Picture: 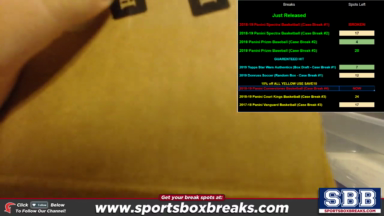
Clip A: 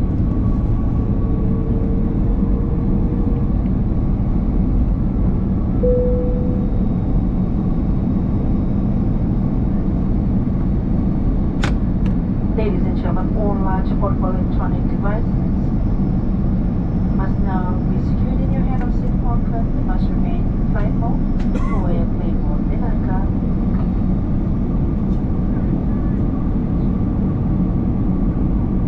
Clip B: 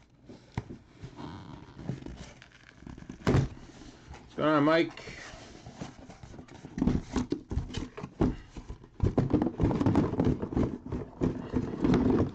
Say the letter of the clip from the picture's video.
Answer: B